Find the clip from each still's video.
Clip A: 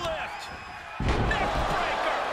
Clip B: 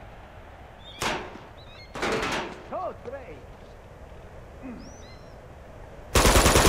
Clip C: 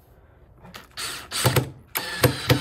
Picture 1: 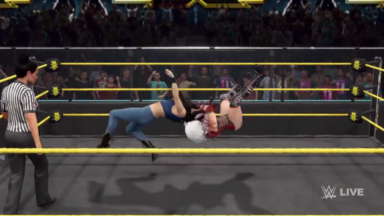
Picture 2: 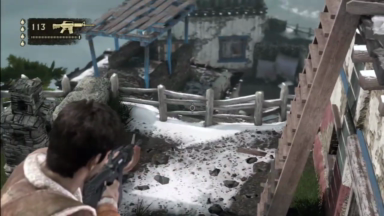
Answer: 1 A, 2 B